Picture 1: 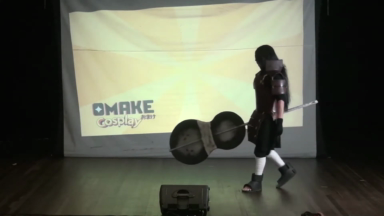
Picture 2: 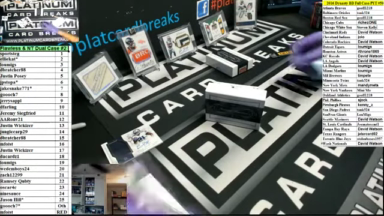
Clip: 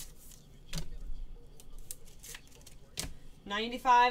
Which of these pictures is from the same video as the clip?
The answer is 2